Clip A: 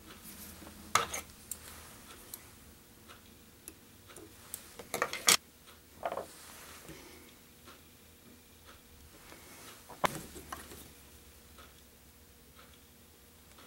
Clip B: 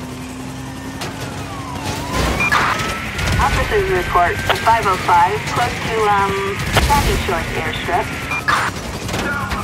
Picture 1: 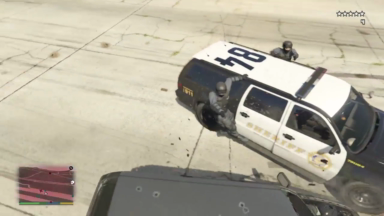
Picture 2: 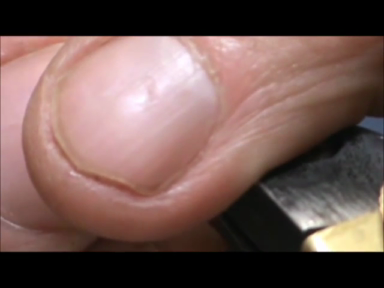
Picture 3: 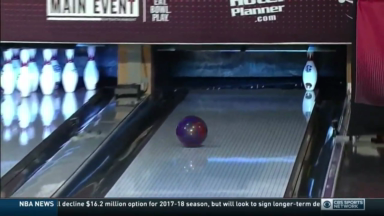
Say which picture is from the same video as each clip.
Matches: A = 2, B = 1